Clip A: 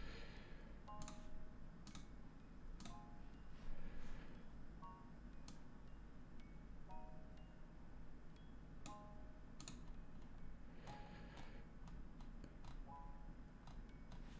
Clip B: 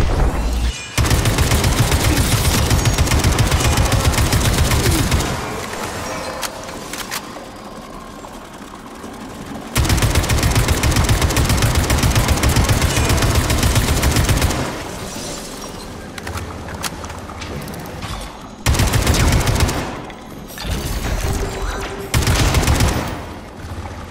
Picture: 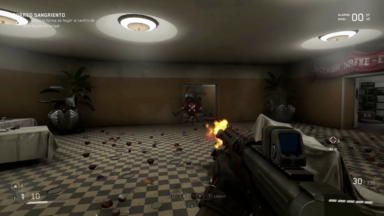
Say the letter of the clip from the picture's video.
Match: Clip B